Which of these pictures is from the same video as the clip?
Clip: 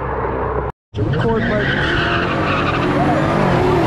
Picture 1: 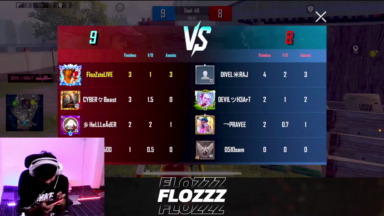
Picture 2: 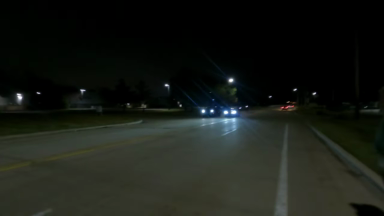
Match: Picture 2